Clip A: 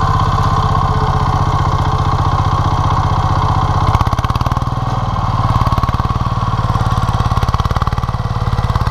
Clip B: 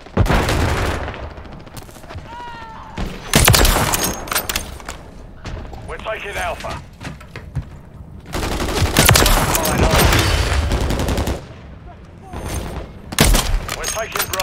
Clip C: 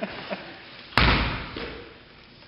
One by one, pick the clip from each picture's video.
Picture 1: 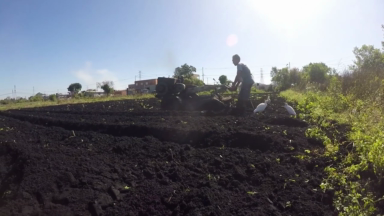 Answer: A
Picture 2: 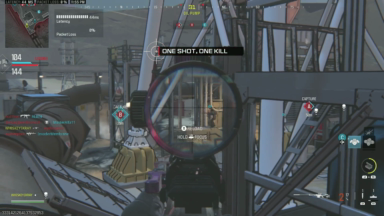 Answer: B